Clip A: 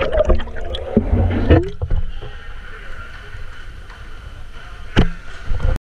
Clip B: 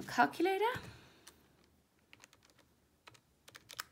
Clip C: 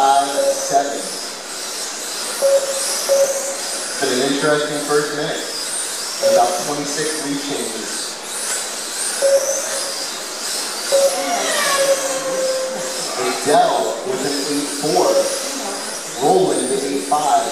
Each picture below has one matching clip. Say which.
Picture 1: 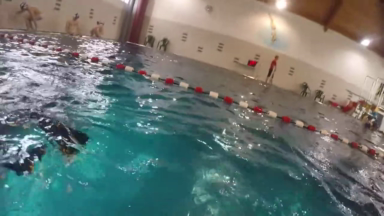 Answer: A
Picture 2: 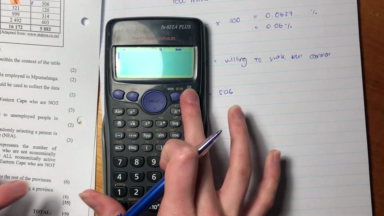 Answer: B